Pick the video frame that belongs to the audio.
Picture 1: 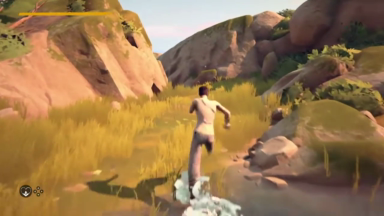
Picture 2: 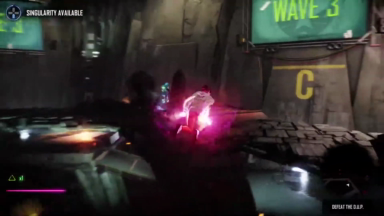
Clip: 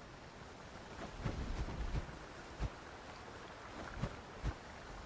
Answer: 1